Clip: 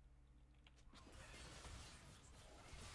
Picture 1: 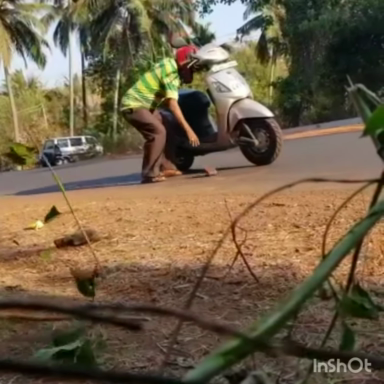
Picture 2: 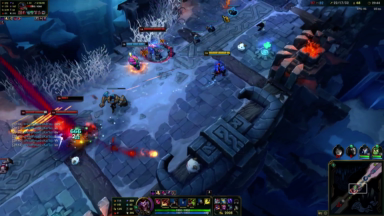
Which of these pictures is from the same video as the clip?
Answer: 2